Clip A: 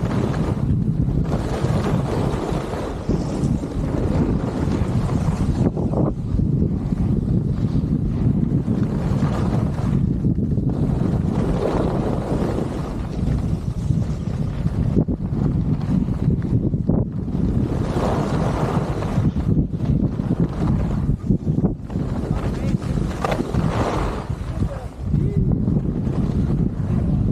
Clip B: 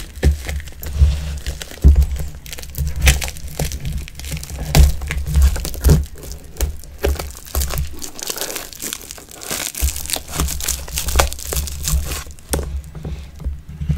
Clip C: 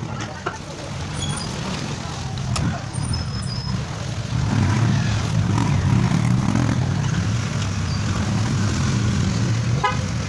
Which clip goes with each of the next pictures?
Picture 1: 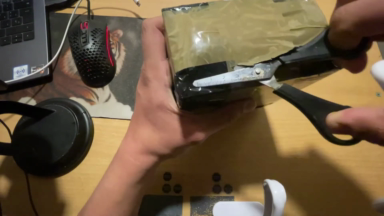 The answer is B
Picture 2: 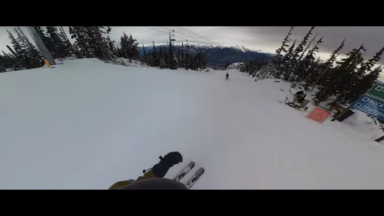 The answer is A